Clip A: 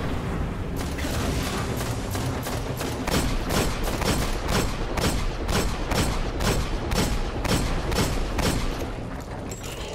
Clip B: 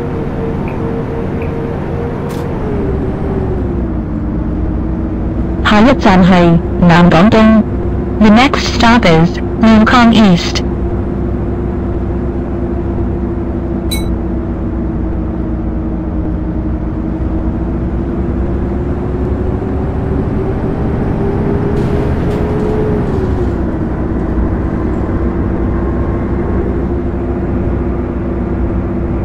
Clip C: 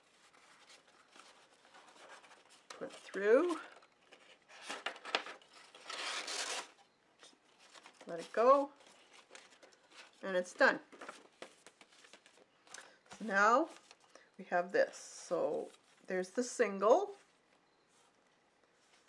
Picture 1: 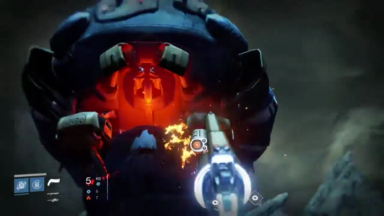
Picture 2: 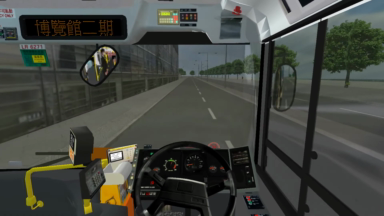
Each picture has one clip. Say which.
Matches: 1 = A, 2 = B